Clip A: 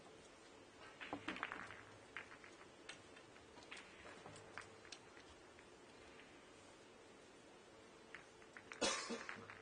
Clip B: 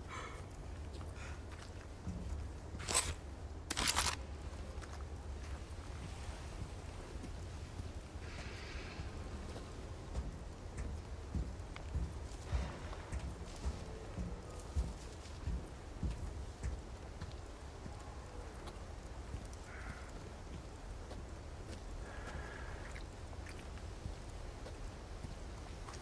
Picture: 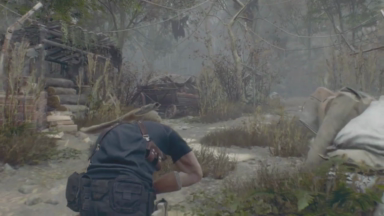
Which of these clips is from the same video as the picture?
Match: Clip B